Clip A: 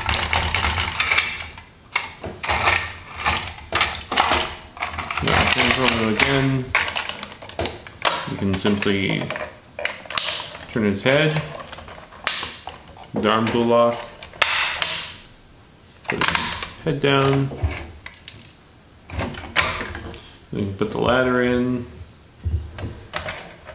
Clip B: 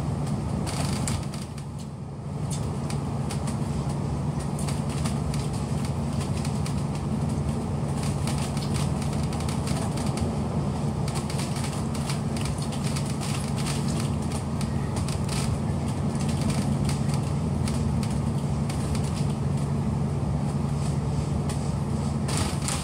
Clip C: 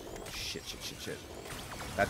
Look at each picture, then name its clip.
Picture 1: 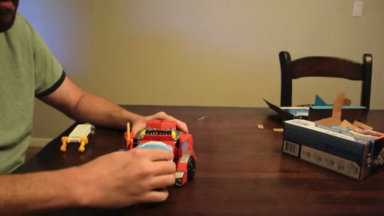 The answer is A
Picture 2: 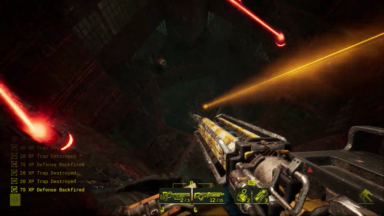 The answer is C